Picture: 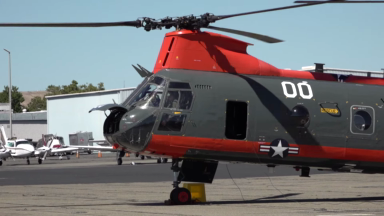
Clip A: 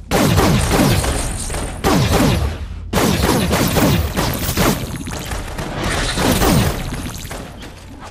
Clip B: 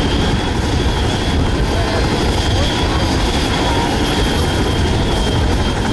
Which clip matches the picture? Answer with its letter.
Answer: B